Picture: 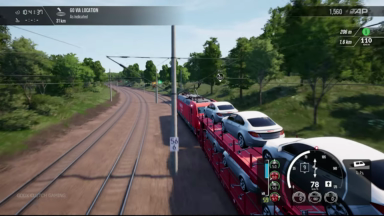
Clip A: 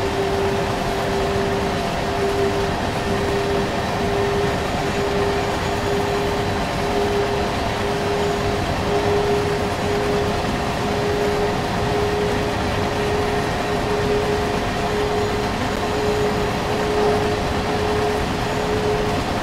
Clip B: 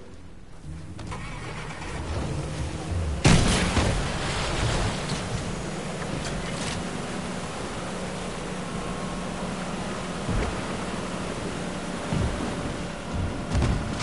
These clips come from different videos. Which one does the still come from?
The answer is A